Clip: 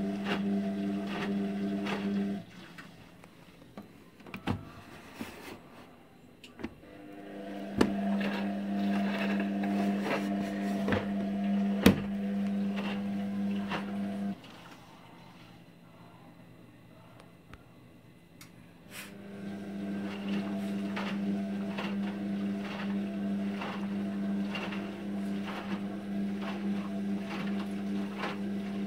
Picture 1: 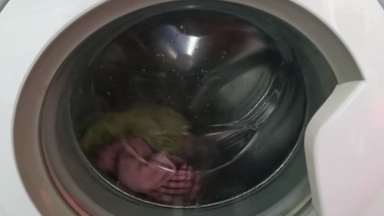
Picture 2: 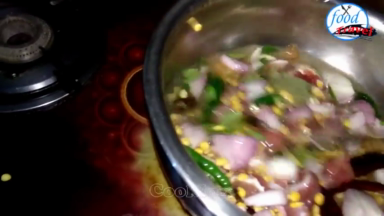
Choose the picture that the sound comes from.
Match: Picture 1